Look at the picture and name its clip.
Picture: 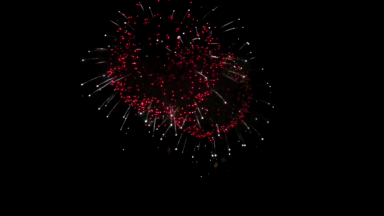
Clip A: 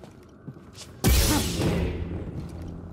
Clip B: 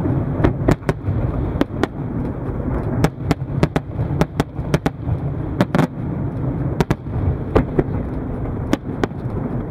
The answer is B